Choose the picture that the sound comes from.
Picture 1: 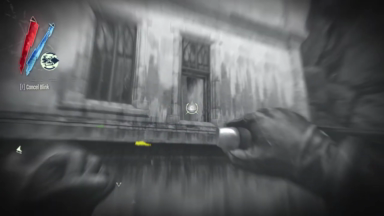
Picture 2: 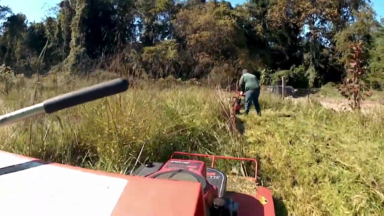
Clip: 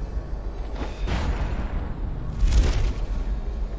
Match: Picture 1